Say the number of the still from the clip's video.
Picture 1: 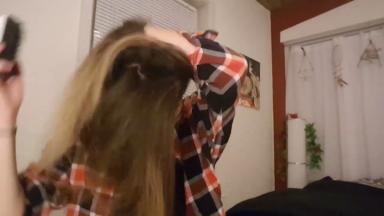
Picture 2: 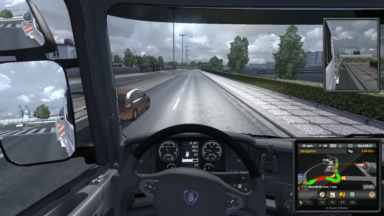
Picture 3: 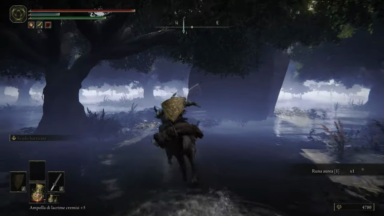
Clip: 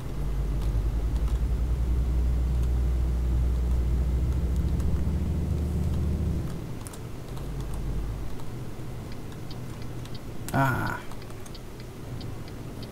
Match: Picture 2